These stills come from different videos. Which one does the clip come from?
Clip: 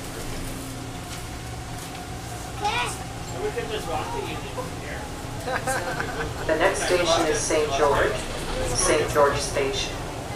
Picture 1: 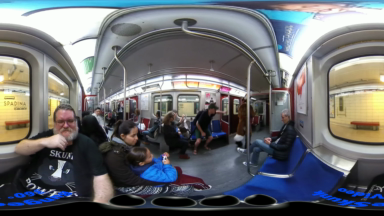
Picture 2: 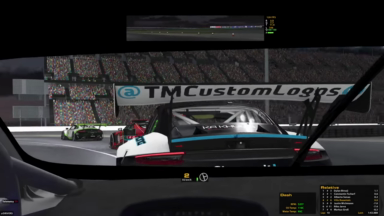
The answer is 1